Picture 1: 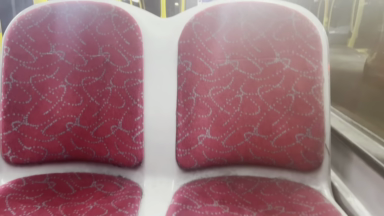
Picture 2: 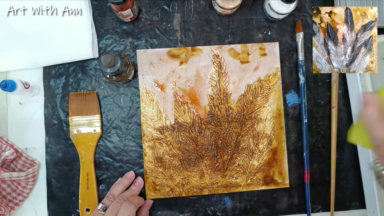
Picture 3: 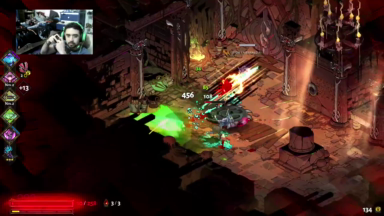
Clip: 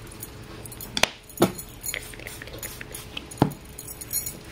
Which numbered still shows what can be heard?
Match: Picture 2